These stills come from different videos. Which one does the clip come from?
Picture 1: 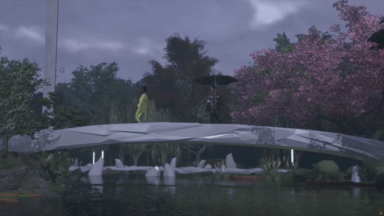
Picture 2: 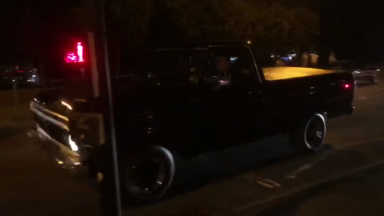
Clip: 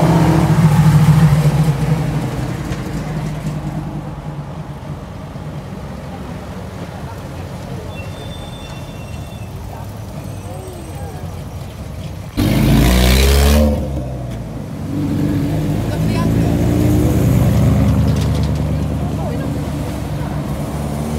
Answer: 2